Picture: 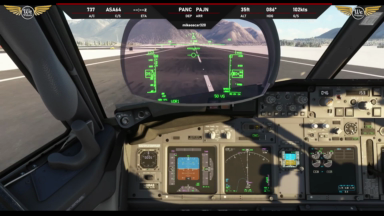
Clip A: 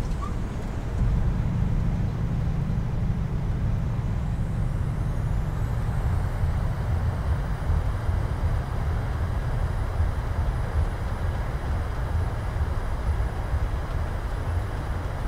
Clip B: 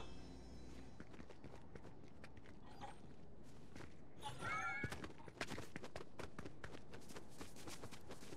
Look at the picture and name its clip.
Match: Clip A